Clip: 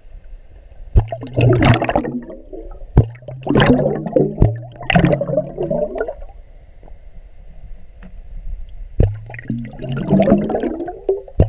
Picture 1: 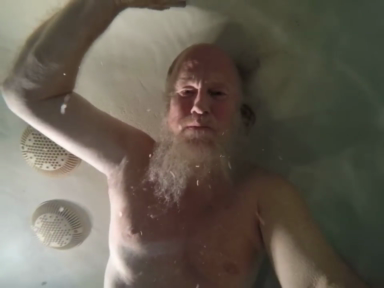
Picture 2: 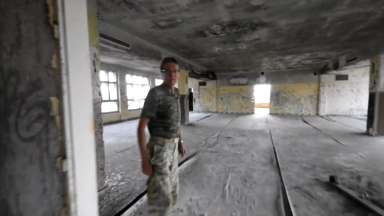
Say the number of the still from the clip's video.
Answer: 1